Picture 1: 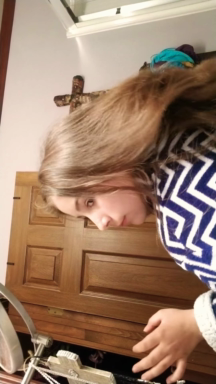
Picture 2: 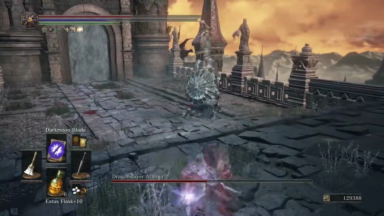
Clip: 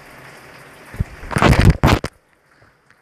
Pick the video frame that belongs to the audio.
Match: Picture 1